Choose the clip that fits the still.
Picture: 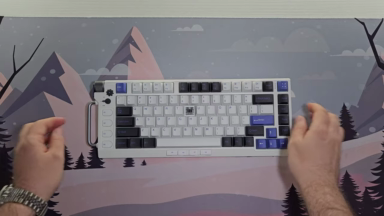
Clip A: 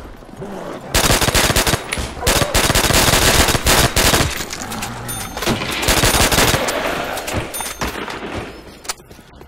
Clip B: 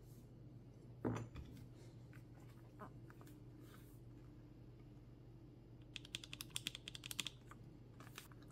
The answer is B